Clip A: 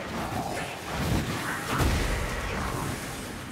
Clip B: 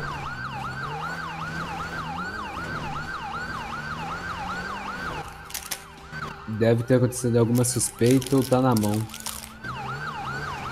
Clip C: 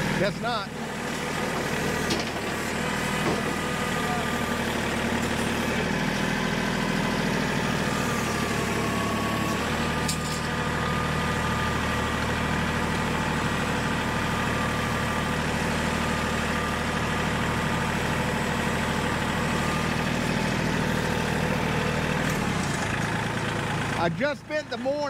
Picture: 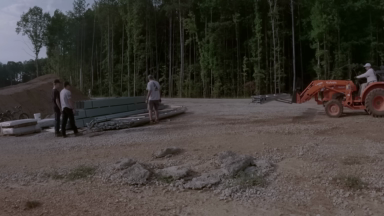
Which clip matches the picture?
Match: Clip C